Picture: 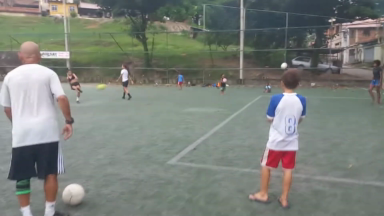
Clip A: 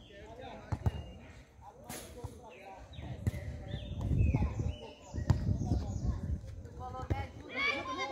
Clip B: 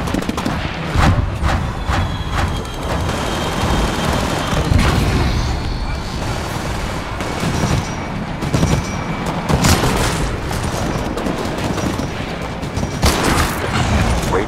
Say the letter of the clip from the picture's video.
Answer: A